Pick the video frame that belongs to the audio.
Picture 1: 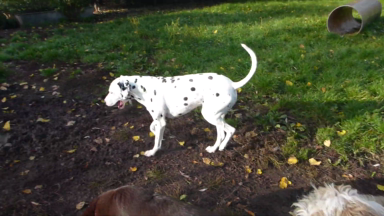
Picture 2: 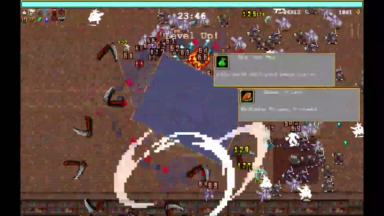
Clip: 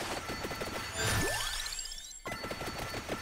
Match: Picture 2